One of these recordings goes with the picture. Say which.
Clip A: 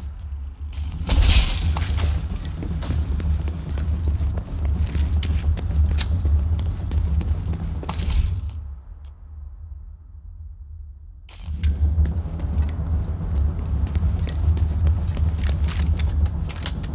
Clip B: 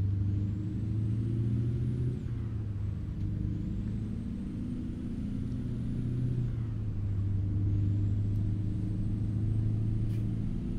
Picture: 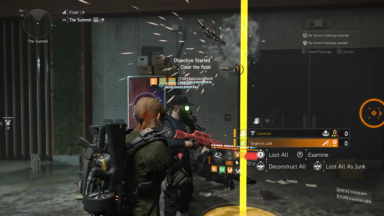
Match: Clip A